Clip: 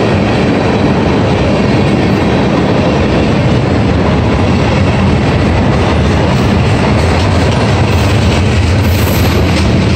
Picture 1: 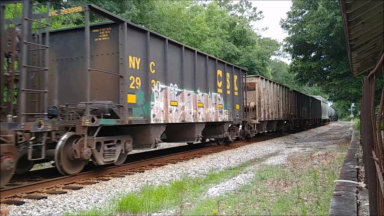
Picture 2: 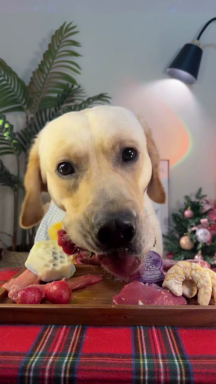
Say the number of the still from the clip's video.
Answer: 1